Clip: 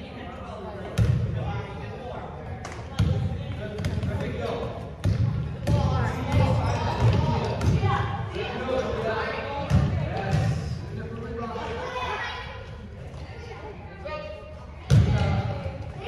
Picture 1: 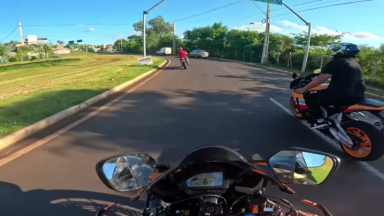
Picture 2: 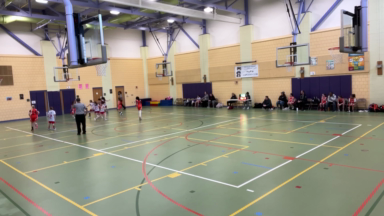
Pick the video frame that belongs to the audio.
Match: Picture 2